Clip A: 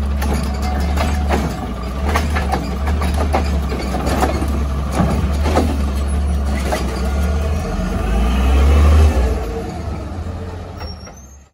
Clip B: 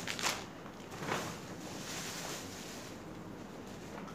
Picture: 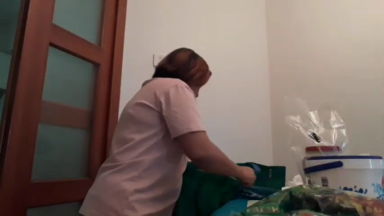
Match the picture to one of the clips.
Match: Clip B